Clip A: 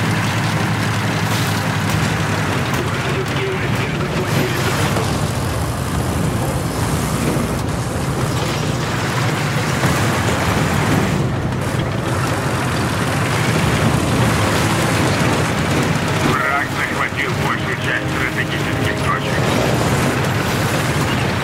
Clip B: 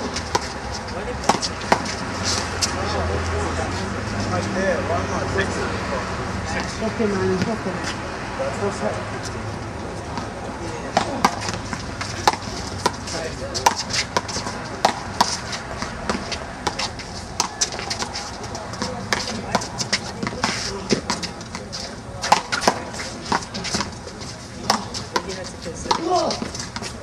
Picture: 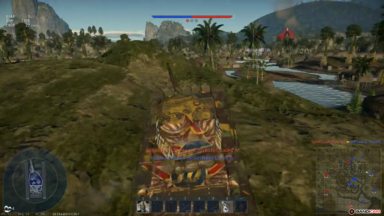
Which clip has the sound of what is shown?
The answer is A